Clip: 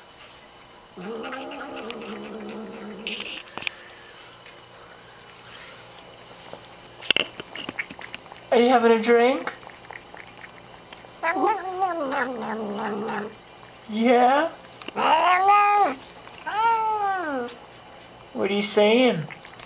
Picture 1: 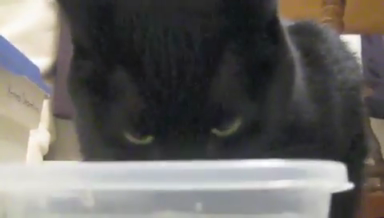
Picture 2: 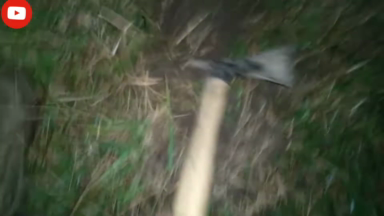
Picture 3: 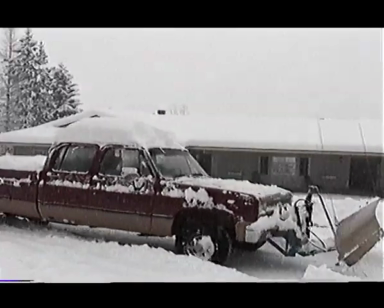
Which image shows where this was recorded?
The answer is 1